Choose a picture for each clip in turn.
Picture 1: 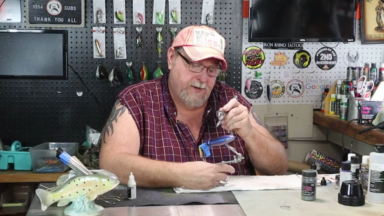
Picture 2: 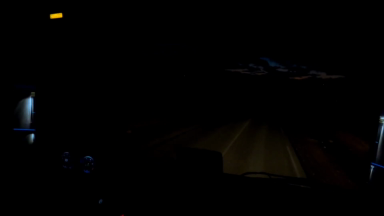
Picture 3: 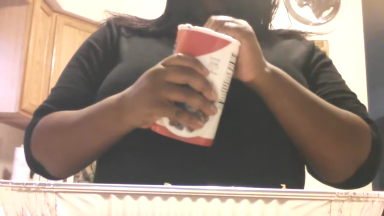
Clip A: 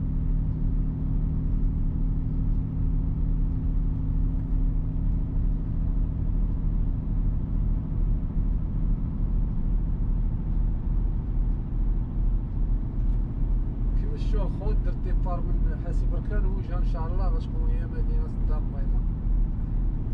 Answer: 2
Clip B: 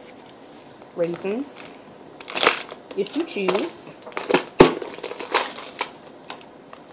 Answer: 3